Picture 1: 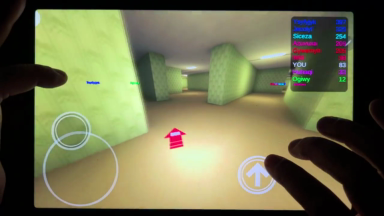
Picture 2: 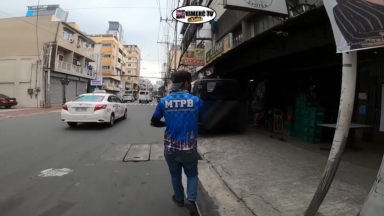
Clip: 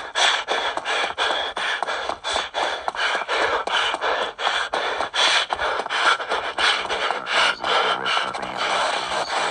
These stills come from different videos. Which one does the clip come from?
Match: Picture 1